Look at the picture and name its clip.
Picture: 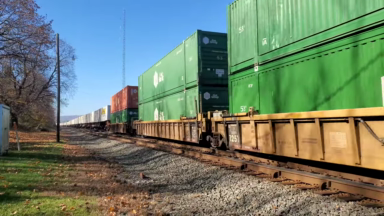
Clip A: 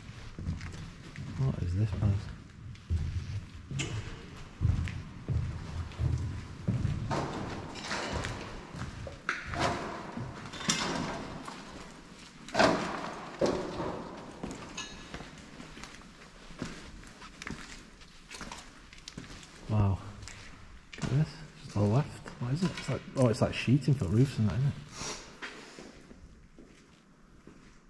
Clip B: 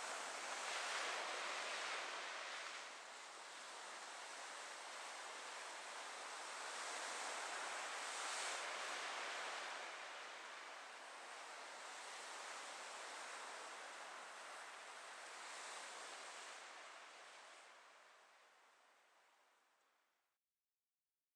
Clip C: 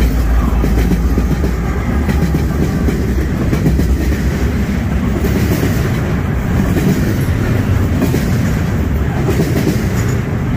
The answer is C